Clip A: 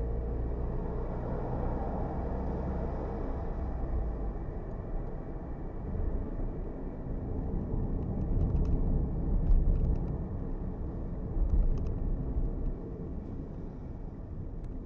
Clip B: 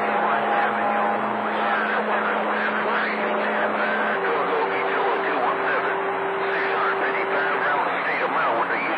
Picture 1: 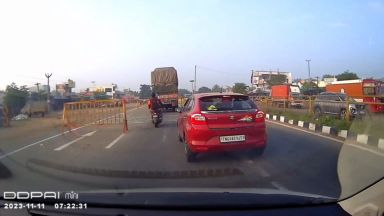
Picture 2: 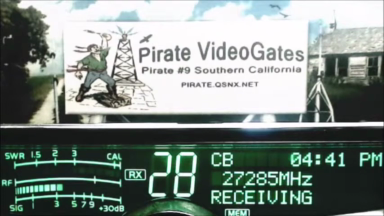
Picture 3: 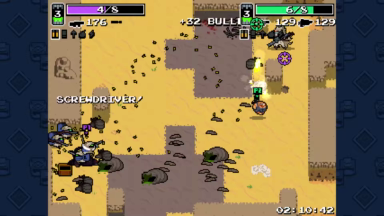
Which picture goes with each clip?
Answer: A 1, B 2